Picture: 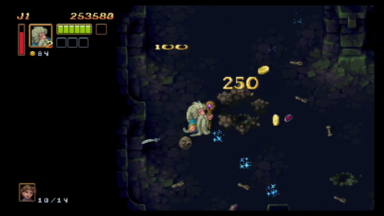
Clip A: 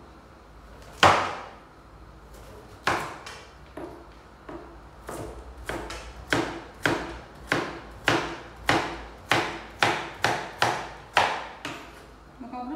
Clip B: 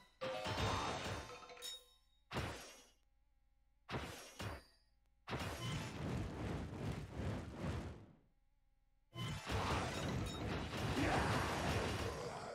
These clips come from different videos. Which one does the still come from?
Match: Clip B